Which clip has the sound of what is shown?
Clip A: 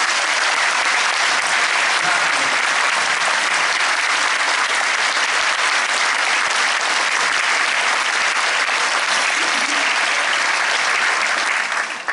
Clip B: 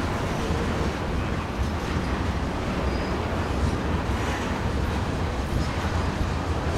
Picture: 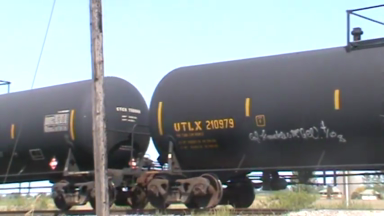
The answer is B